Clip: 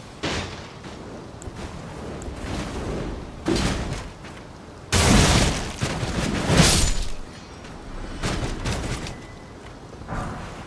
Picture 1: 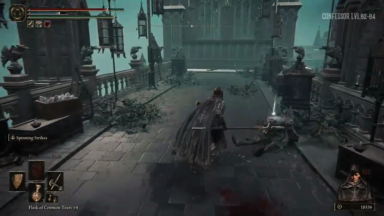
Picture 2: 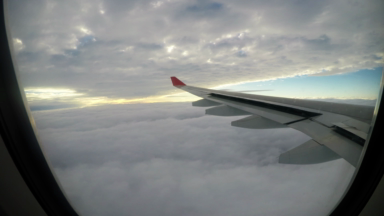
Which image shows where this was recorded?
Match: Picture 1